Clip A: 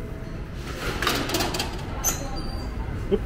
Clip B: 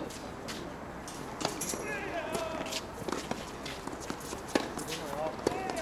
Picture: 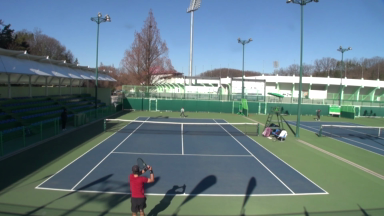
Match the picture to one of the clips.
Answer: B